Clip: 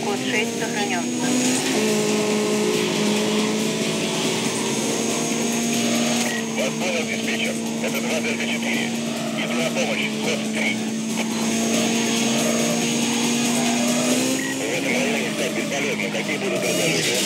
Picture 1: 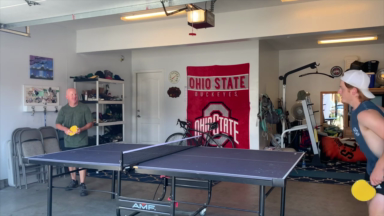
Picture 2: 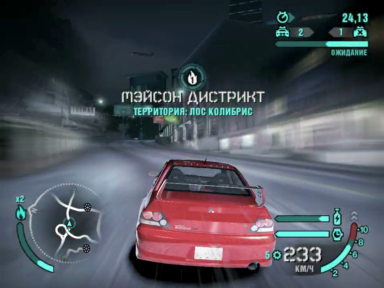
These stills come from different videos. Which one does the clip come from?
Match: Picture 2